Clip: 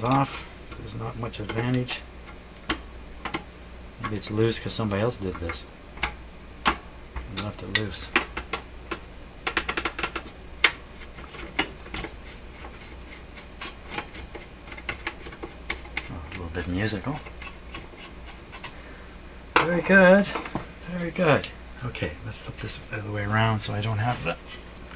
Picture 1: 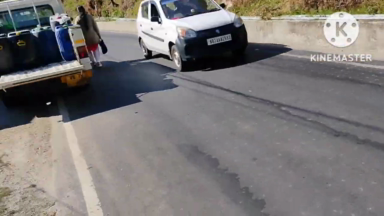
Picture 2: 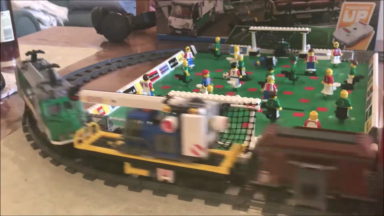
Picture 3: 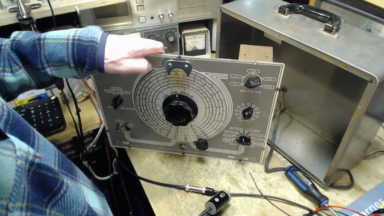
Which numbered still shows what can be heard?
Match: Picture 3